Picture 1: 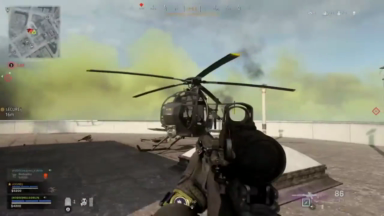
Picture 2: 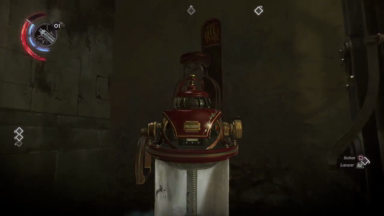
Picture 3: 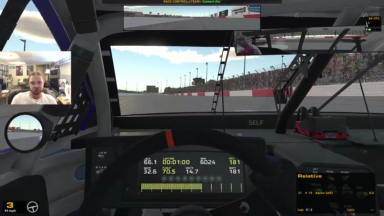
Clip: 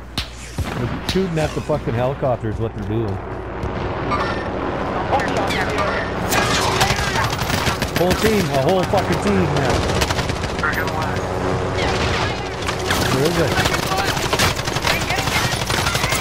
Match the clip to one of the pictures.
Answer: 1